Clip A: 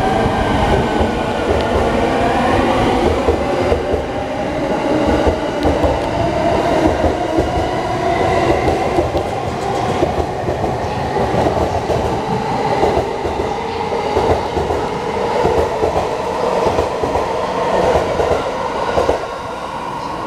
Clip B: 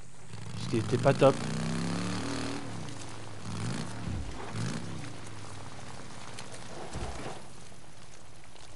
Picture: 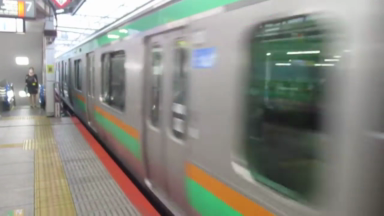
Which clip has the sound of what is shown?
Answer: A